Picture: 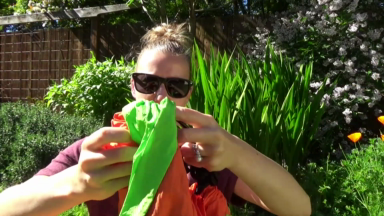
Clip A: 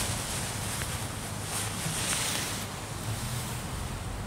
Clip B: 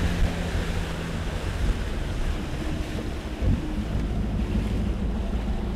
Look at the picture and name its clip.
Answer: A